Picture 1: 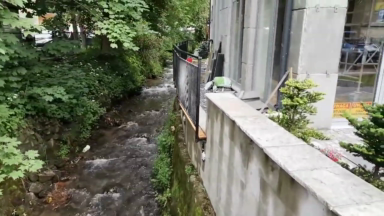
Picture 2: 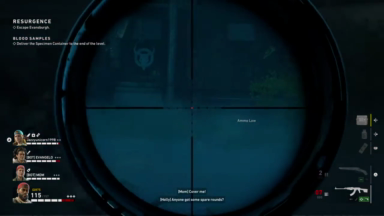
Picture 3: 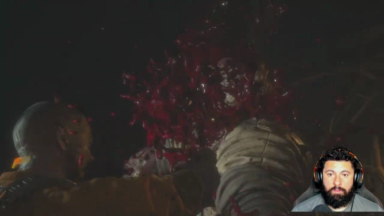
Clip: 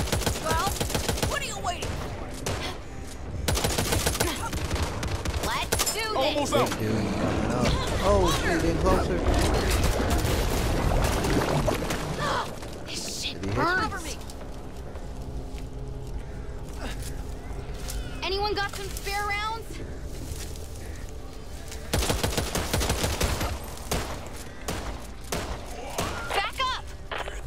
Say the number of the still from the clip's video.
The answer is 2